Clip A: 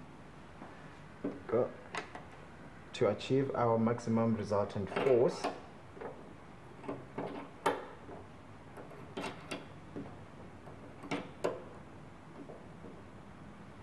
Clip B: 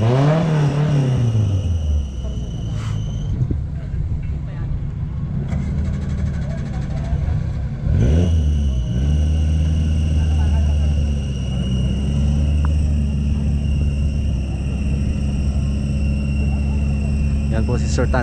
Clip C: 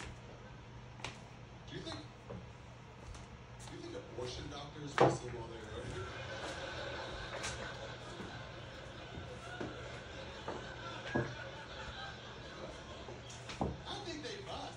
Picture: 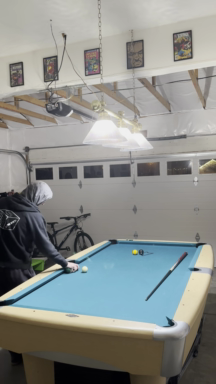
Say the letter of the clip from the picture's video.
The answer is C